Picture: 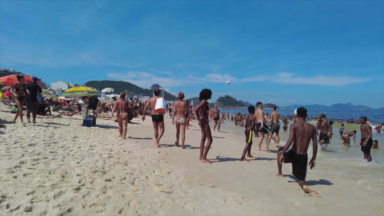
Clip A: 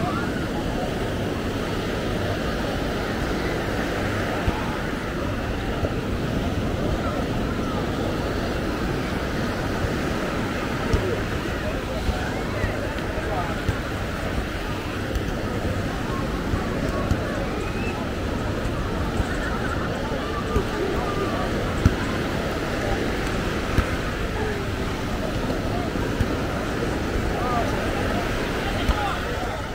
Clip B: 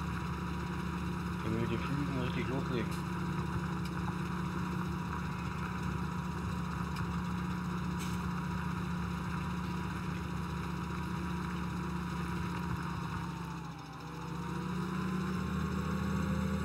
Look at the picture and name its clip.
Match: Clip A